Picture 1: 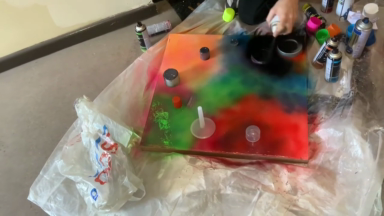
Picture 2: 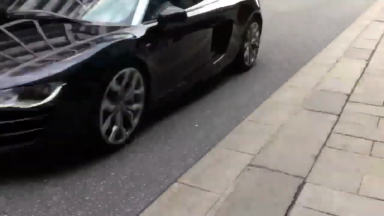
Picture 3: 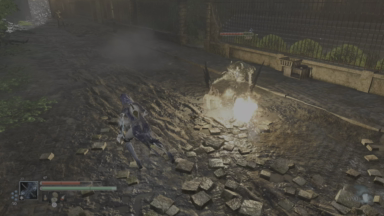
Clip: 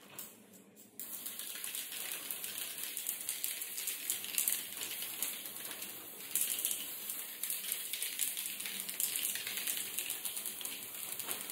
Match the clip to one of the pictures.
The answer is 1